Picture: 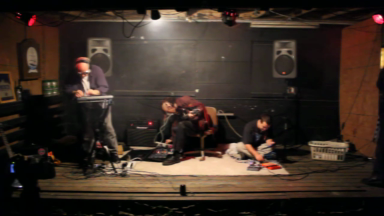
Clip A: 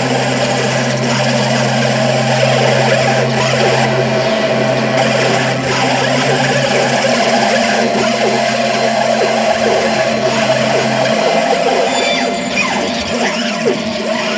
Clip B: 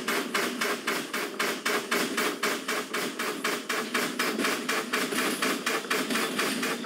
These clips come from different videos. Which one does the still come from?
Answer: A